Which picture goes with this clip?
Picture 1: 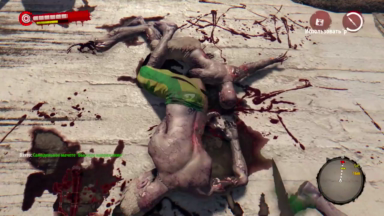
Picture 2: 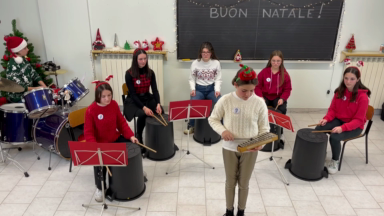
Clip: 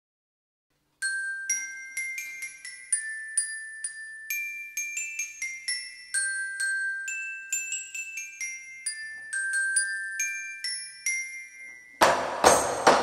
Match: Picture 2